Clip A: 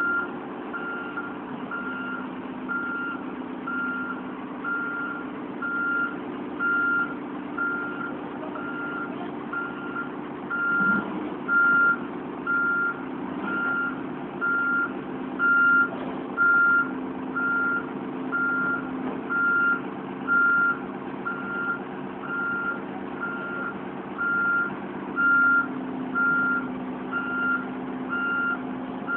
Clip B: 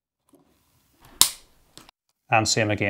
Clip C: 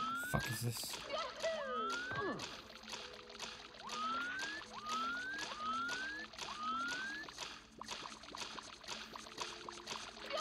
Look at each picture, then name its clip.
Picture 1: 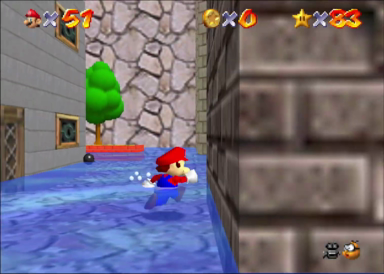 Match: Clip C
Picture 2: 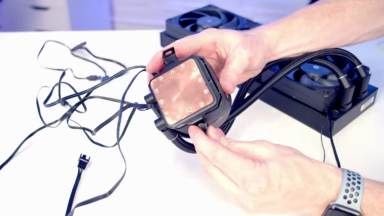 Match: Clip B